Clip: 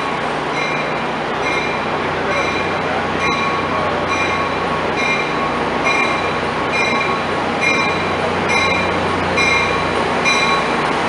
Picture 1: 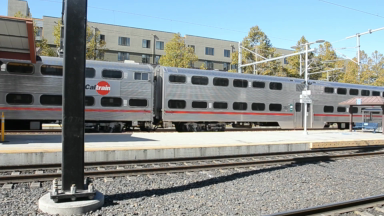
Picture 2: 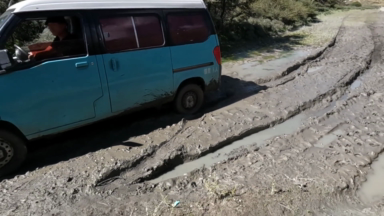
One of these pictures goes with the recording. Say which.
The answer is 1